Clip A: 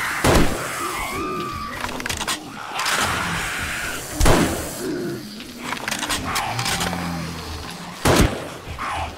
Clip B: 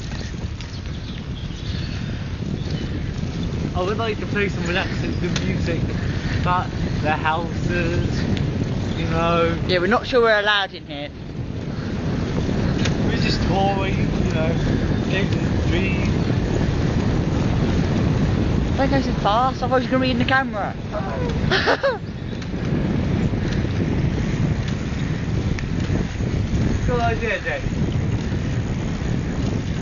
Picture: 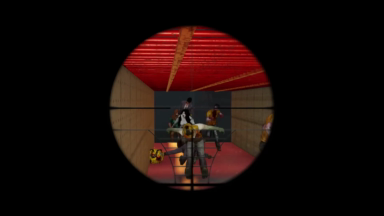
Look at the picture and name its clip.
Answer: A